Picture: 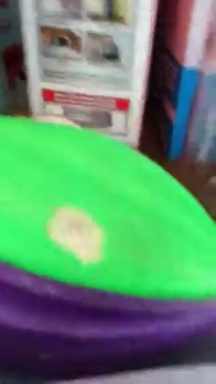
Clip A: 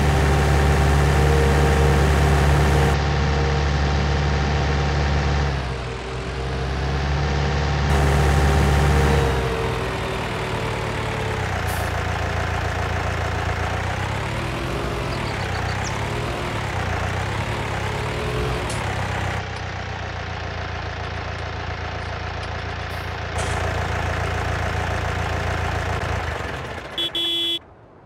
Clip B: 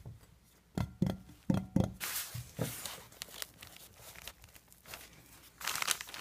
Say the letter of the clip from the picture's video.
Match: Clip B